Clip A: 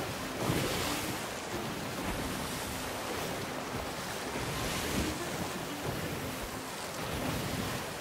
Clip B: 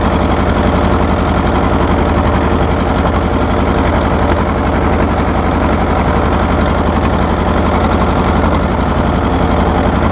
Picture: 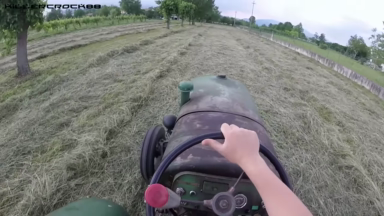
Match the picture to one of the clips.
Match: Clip B